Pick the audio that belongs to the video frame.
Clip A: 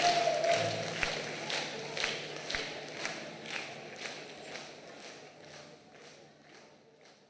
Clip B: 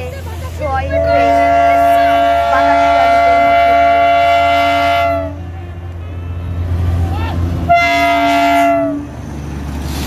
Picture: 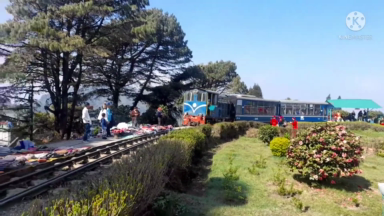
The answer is B